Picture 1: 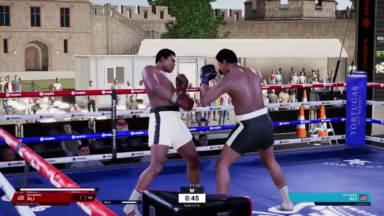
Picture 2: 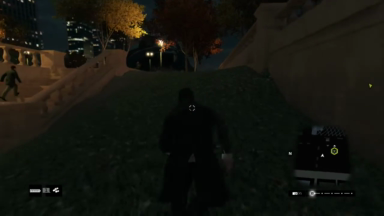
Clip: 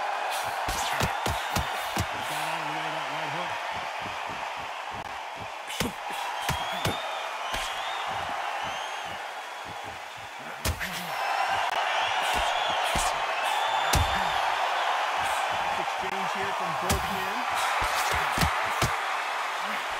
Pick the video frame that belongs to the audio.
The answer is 1